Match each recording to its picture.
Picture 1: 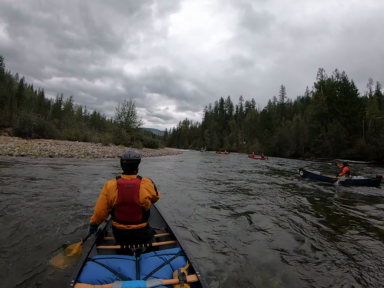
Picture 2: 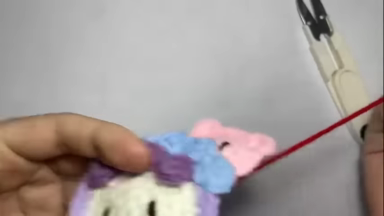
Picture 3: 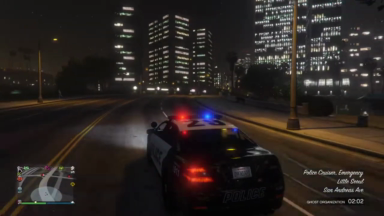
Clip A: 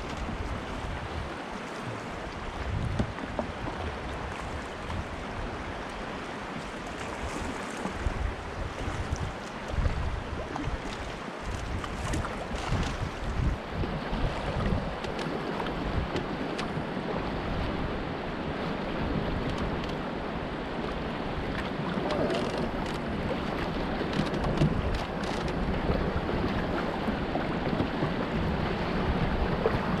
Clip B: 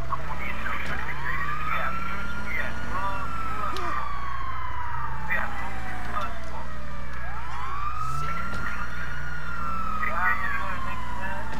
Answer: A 1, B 3